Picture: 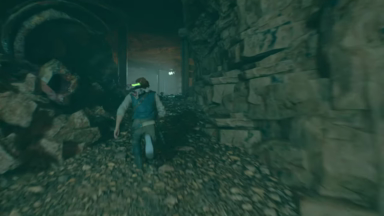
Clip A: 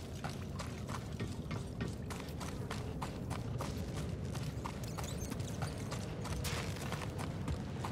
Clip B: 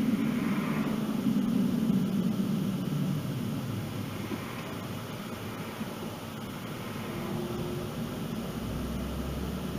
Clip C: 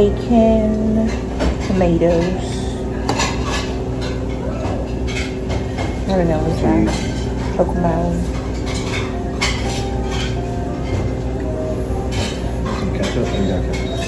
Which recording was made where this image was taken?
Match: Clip A